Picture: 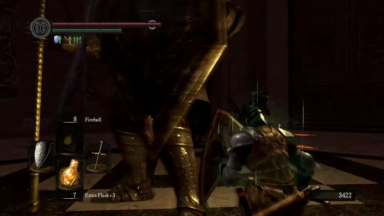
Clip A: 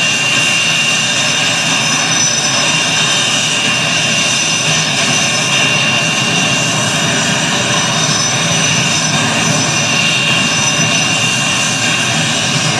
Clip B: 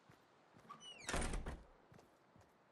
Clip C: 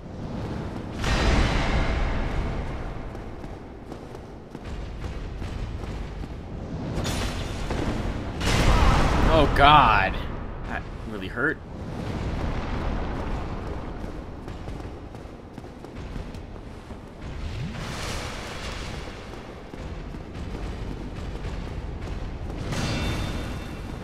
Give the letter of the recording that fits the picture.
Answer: C